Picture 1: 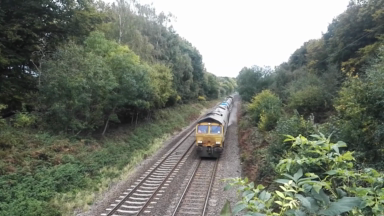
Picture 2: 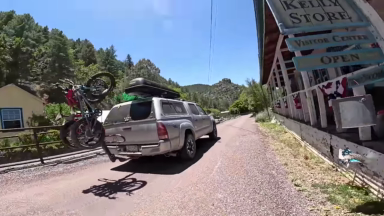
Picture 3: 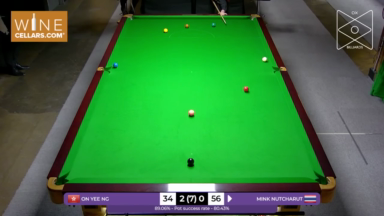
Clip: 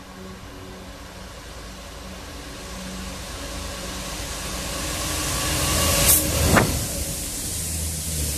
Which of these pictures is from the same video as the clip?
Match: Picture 1